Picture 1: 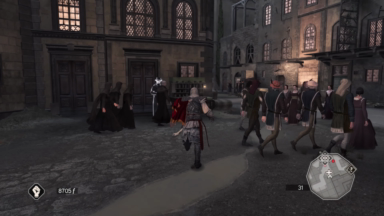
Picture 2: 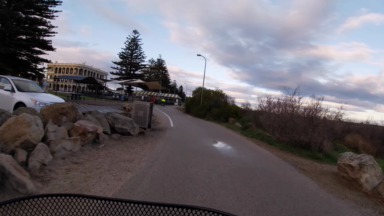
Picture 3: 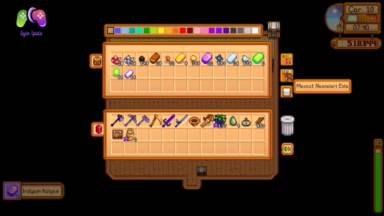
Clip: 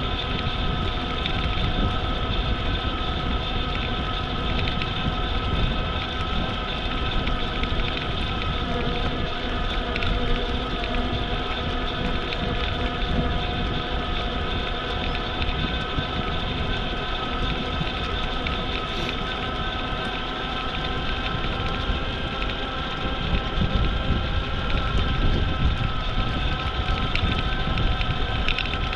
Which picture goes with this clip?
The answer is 2